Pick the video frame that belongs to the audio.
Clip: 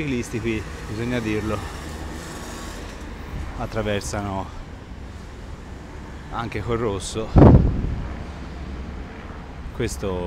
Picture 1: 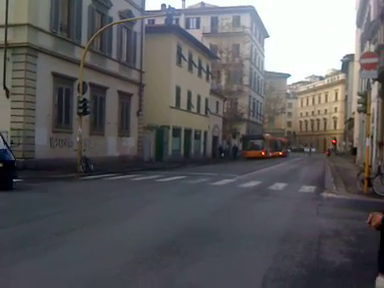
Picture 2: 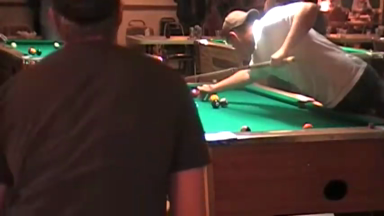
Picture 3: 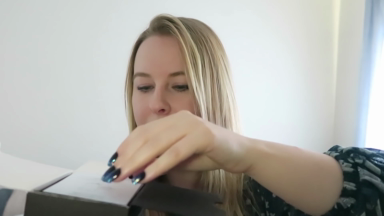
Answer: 1